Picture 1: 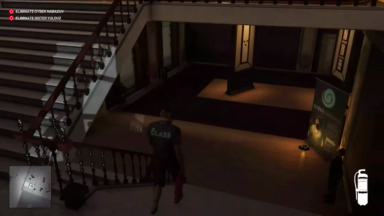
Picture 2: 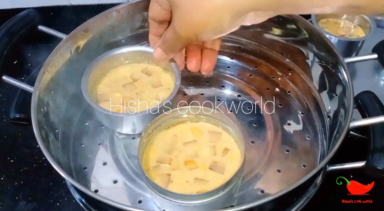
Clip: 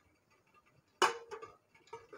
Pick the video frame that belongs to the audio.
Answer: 2